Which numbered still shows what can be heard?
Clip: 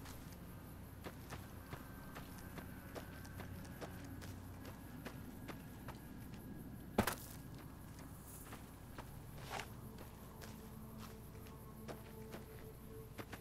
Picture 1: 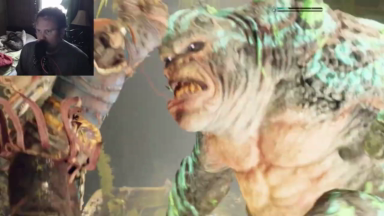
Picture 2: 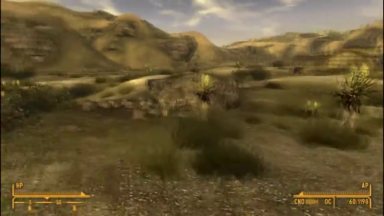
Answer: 2